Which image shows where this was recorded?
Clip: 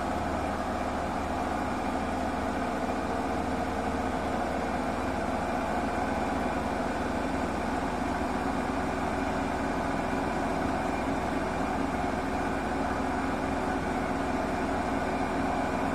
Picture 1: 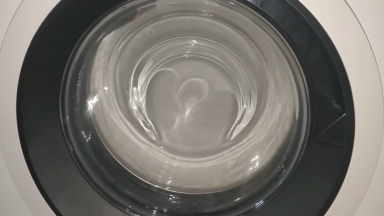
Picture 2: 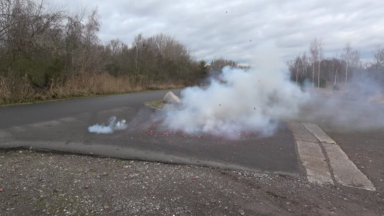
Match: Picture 1